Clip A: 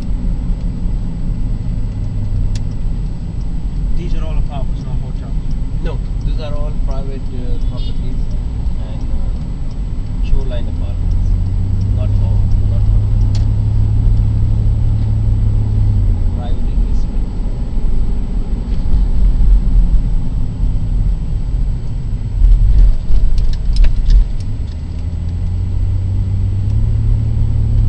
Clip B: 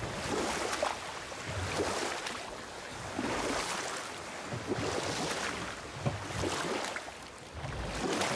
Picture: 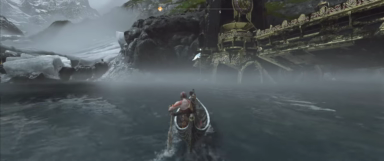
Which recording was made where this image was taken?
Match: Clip B